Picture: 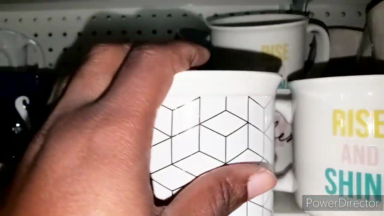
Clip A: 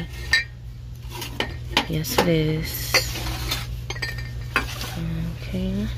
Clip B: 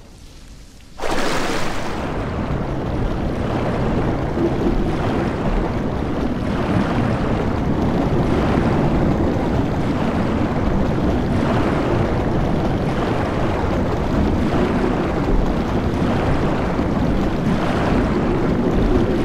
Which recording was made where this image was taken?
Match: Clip A